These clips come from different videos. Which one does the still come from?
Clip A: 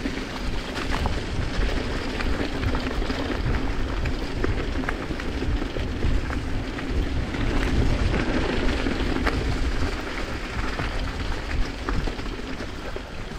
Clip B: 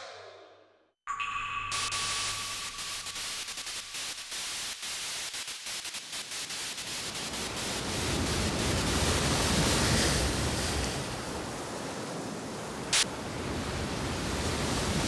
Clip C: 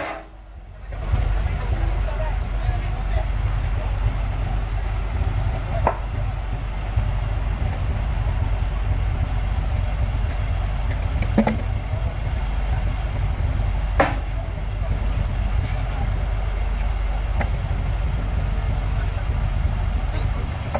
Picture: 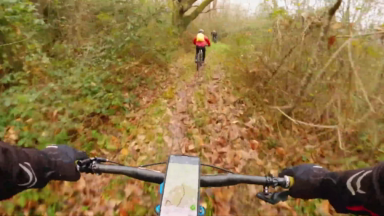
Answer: A